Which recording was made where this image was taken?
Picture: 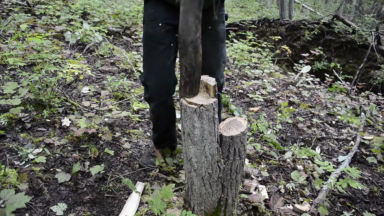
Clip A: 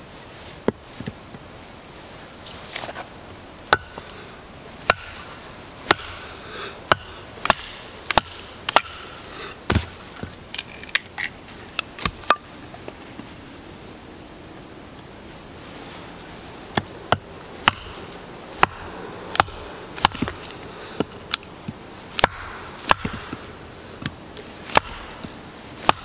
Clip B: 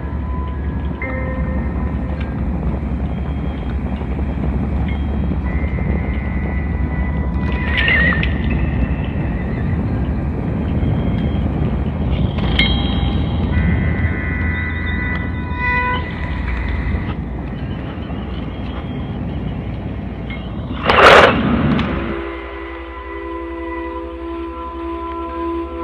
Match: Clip A